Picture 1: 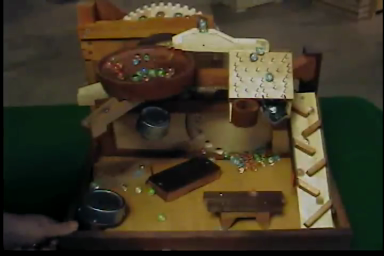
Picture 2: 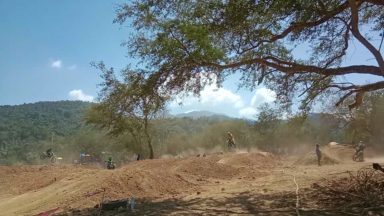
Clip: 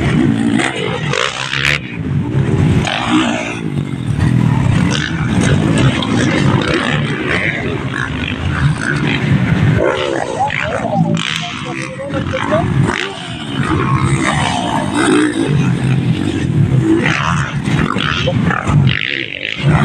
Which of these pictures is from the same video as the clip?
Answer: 2